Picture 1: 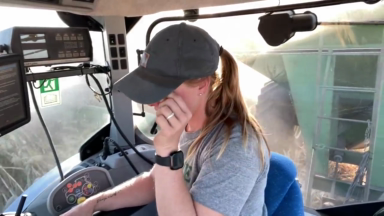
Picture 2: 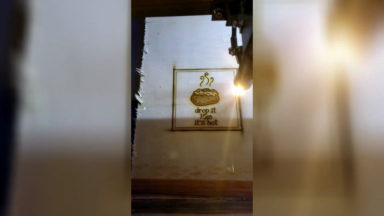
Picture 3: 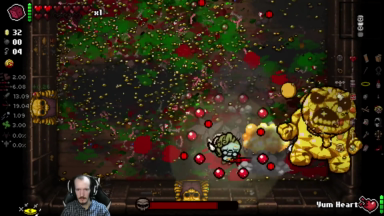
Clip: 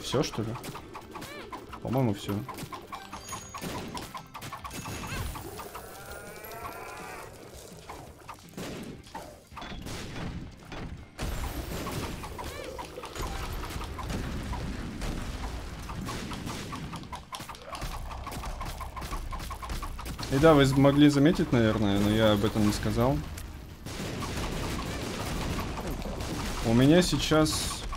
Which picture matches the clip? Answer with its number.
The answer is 3